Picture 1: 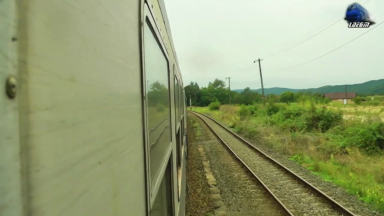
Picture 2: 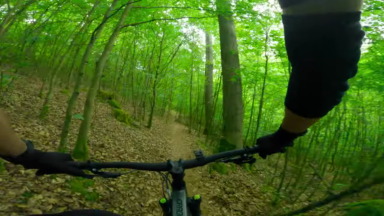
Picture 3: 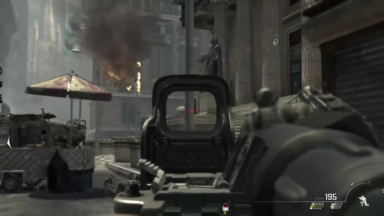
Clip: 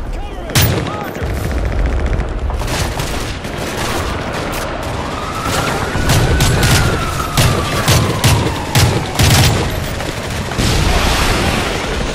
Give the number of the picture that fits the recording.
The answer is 3